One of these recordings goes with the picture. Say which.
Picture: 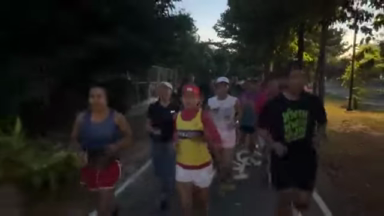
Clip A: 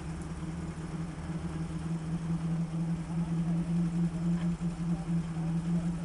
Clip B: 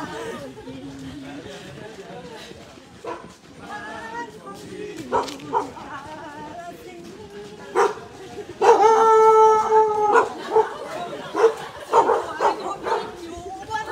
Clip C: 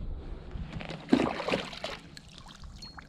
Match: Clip B